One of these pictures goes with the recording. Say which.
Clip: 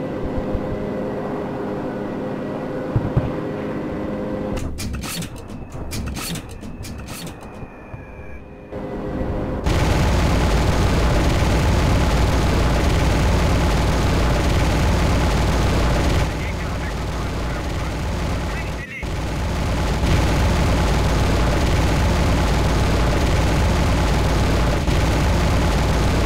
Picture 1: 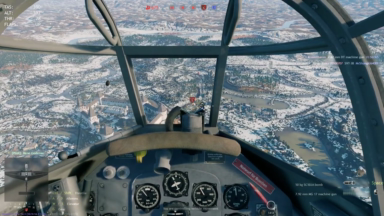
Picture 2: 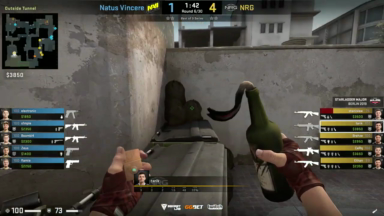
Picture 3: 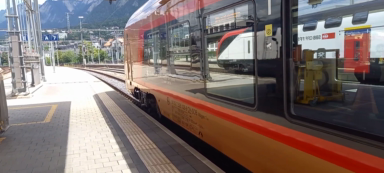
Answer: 1